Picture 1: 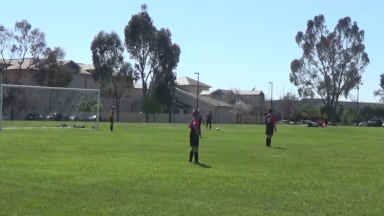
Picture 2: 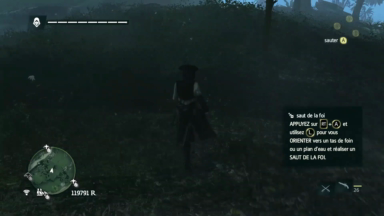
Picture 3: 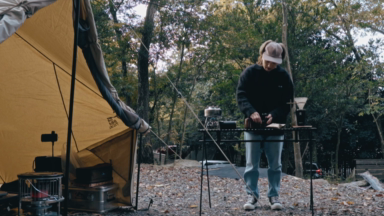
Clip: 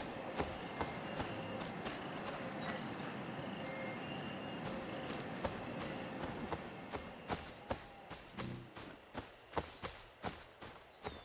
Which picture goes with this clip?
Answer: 2